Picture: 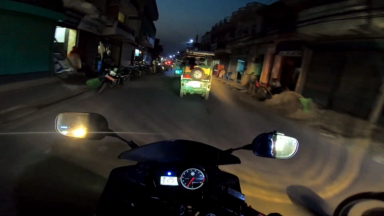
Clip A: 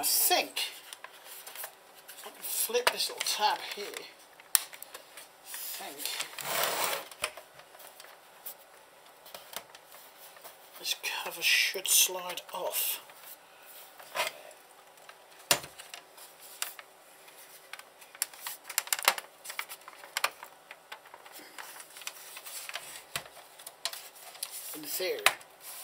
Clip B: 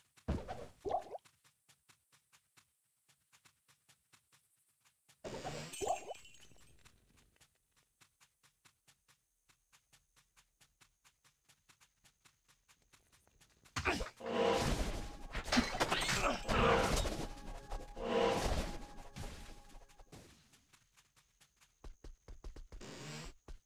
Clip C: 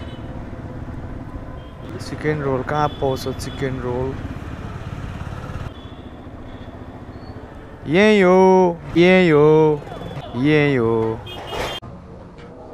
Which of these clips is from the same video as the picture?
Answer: C